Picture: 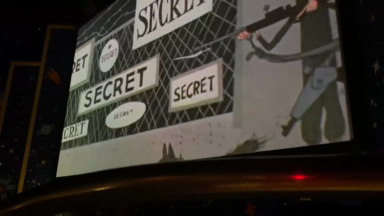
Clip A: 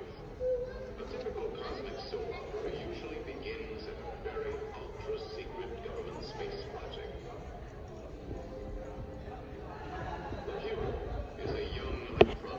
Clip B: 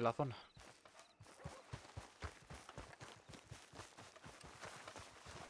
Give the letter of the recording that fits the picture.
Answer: A